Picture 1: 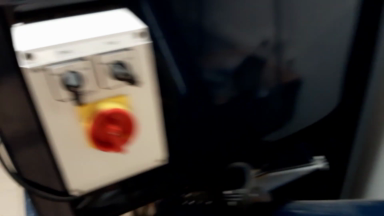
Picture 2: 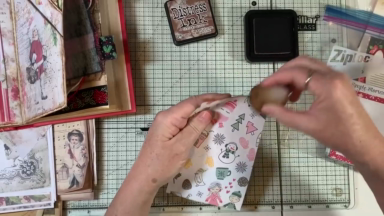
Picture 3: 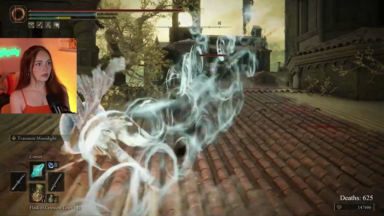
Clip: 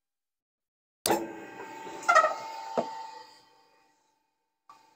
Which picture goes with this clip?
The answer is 1